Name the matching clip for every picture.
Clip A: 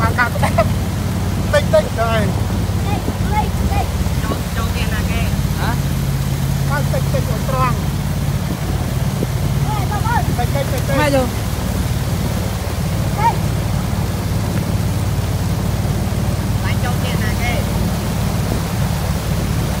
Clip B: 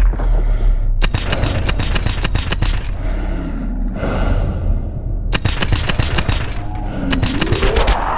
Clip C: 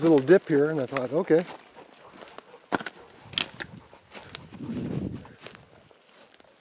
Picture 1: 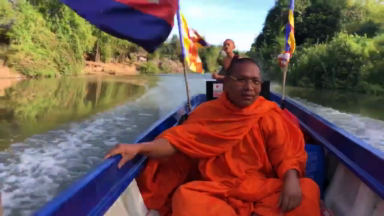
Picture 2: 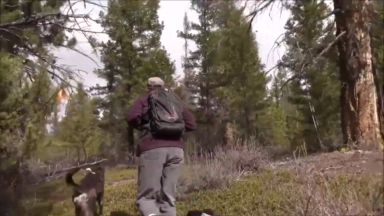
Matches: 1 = A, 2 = C